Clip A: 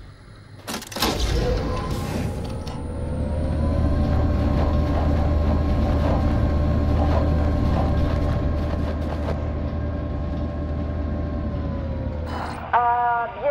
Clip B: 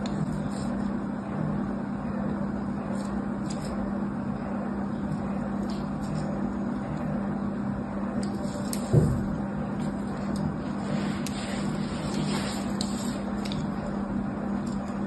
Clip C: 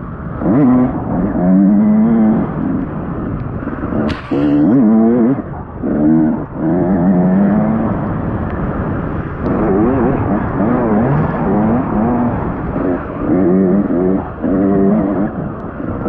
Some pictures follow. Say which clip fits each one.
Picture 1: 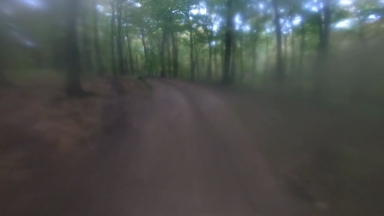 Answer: C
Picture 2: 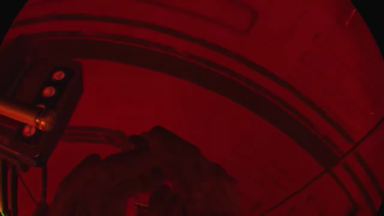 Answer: A